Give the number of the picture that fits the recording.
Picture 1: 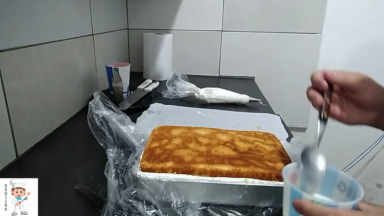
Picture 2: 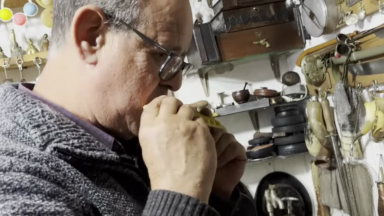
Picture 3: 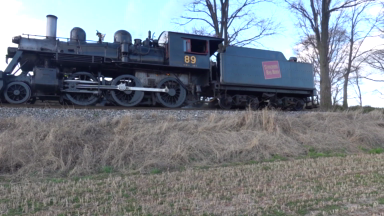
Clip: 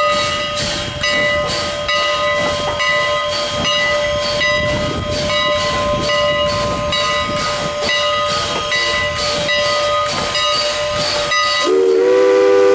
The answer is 3